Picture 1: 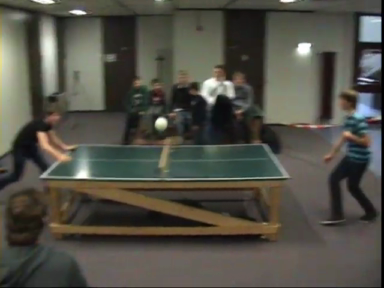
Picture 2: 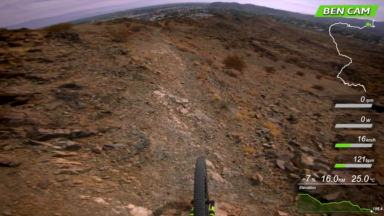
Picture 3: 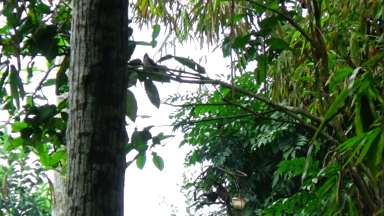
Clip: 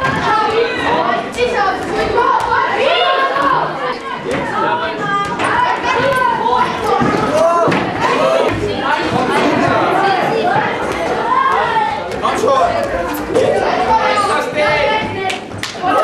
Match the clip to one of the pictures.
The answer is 1